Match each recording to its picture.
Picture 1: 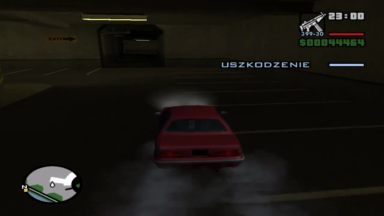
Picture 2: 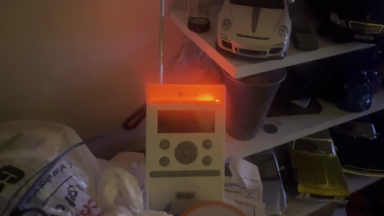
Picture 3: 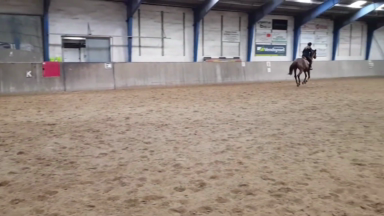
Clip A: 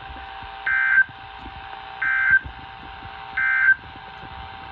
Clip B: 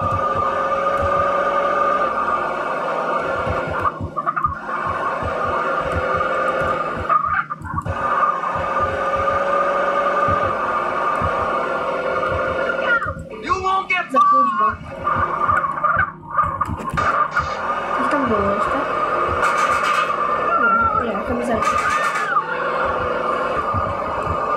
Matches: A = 2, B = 1